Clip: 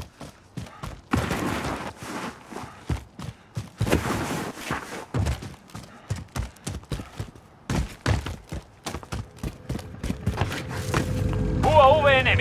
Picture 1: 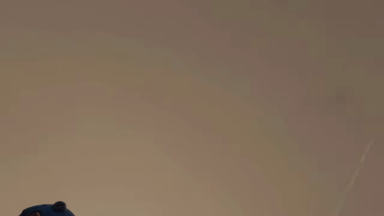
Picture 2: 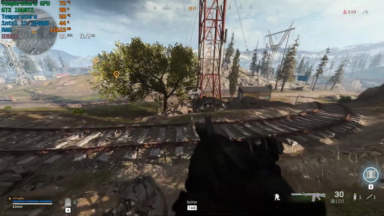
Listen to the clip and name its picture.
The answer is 2